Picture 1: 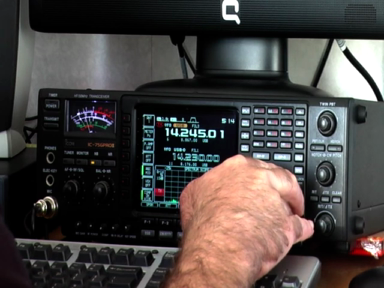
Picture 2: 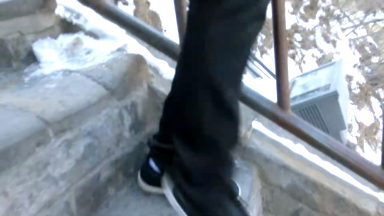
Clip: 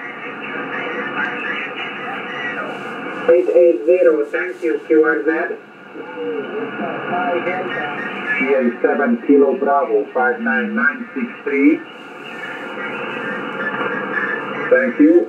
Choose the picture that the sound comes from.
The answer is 1